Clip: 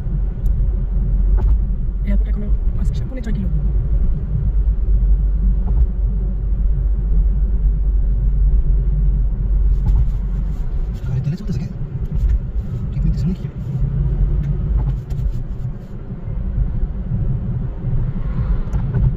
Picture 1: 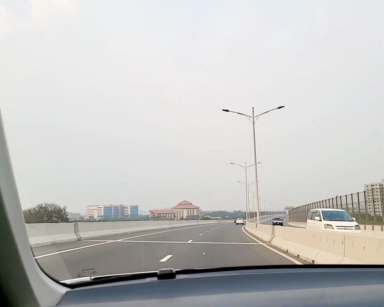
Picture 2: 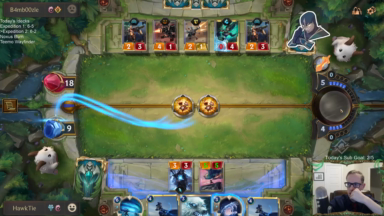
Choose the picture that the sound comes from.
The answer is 1